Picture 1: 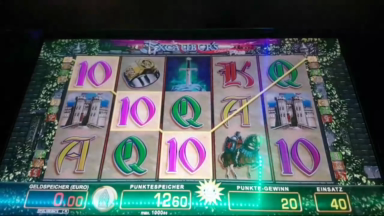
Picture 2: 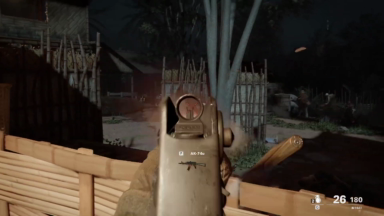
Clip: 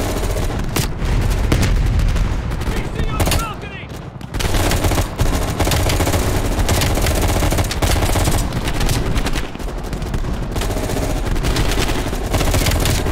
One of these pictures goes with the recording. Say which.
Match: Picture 2